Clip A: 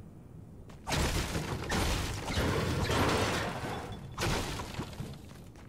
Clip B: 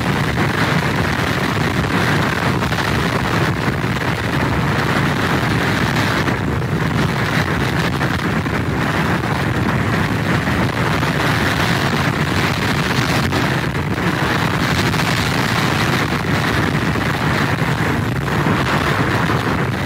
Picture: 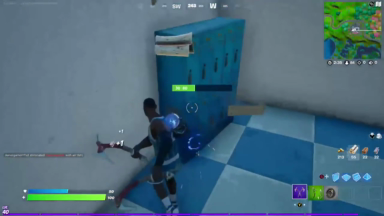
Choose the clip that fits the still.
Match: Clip A